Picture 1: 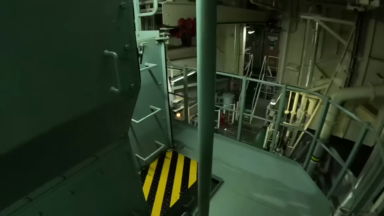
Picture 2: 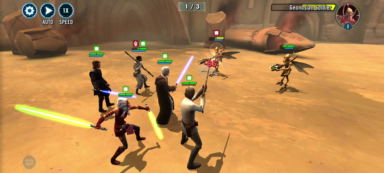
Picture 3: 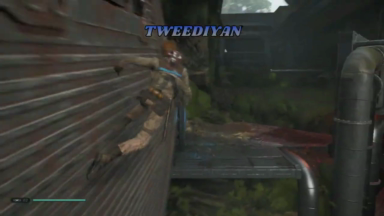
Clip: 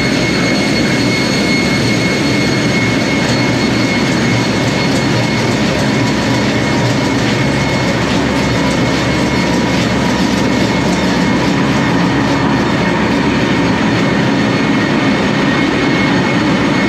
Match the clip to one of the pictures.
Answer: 1